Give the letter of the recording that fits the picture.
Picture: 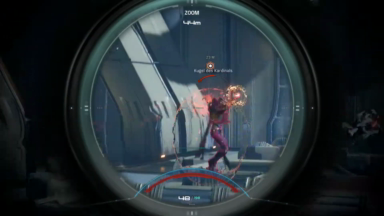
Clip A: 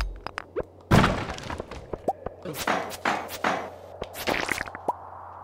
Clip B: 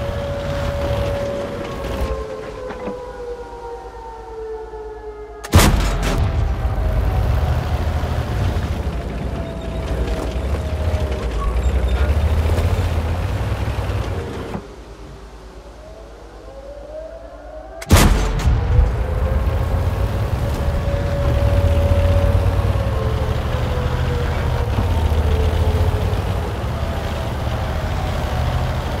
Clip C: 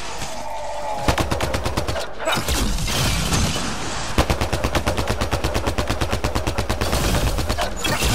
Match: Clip C